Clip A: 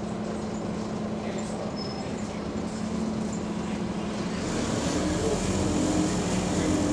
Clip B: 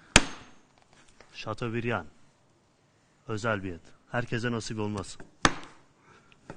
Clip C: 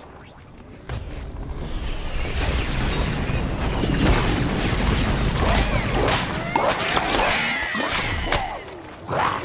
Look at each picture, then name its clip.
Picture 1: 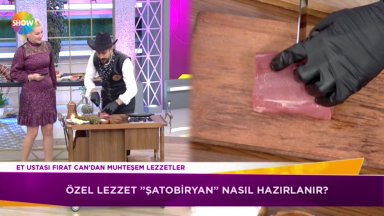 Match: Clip B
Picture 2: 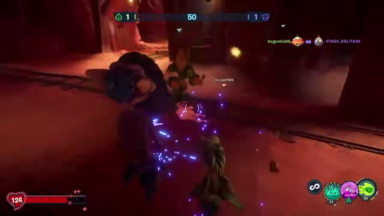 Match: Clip C